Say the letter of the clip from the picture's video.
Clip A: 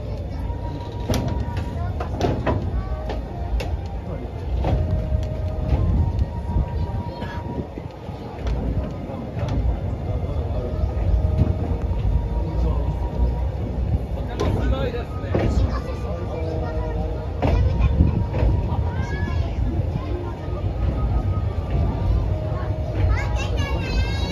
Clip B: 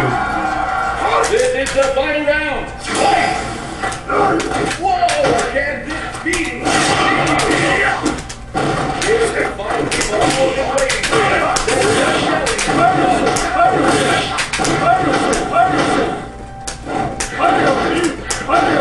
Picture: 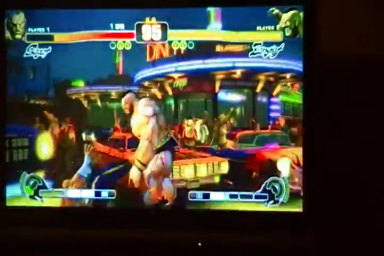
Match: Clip B